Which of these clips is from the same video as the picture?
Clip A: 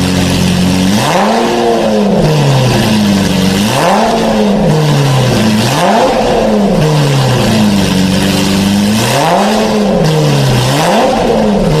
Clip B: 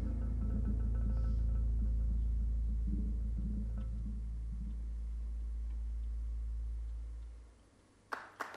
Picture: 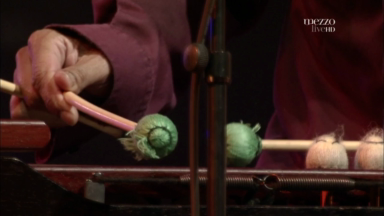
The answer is B